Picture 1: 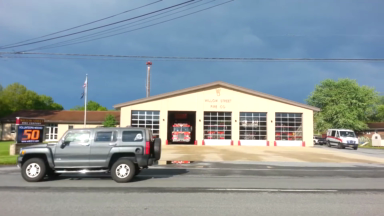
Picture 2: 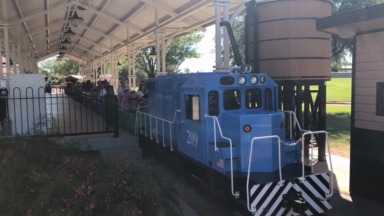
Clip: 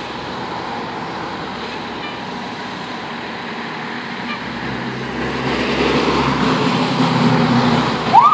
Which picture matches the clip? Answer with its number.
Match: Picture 1